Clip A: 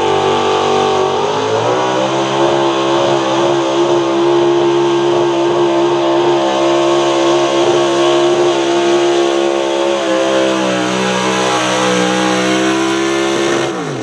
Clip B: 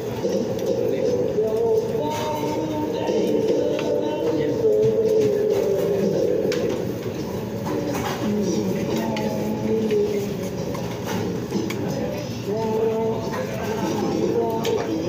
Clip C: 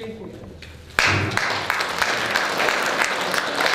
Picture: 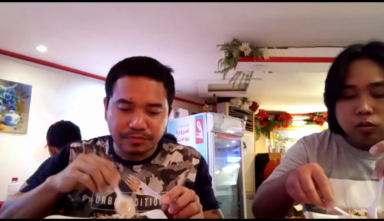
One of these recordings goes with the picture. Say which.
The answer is B